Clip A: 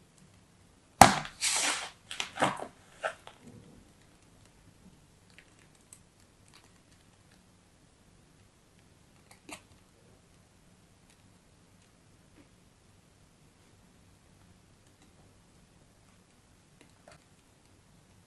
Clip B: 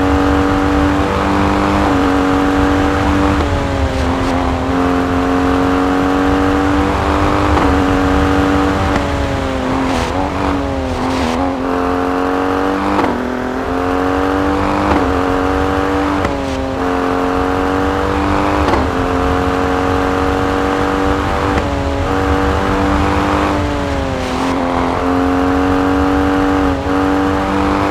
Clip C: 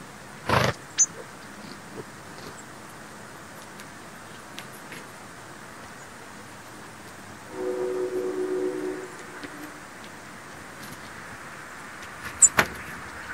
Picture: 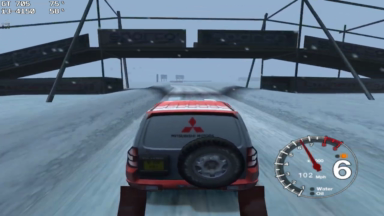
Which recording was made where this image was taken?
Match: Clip B